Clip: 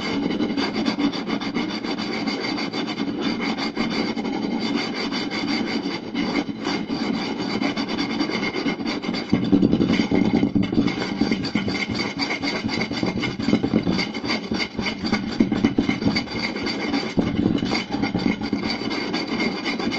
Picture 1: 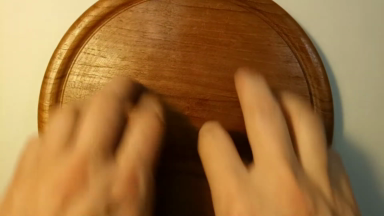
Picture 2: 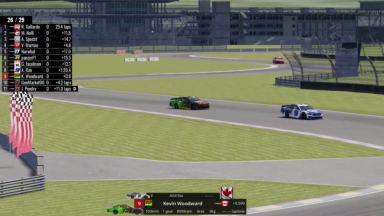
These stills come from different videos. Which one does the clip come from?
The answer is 1